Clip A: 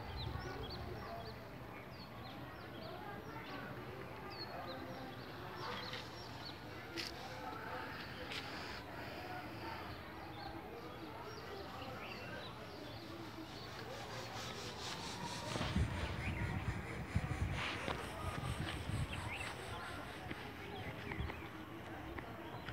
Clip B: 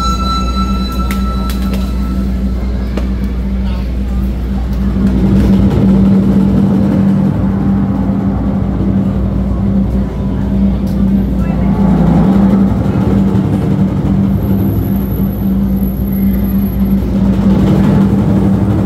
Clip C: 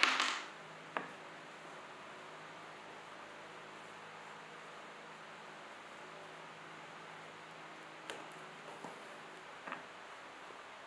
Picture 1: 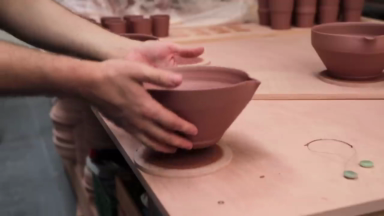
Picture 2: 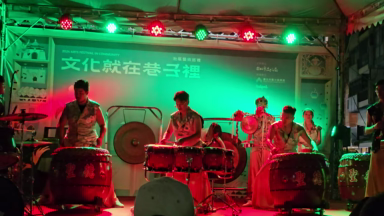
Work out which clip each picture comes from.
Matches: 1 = C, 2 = B